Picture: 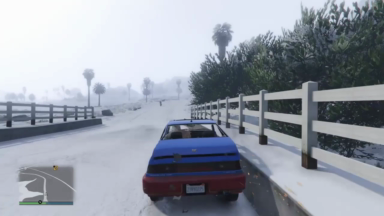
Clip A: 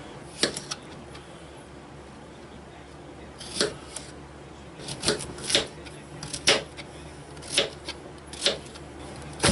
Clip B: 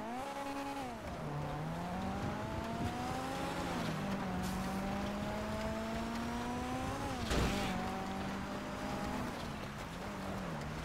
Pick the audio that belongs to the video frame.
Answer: B